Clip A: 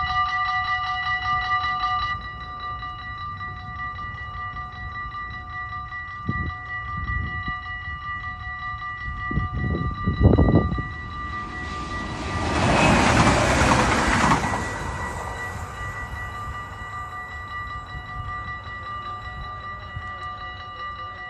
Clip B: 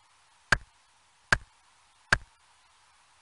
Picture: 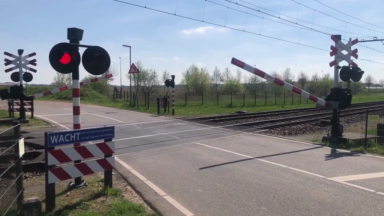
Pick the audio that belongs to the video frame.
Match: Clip A